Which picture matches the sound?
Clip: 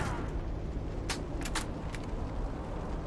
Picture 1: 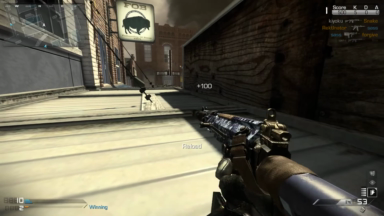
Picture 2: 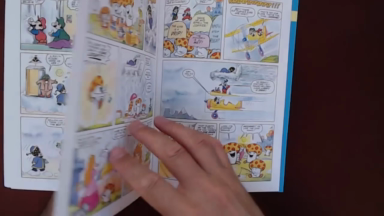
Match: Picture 1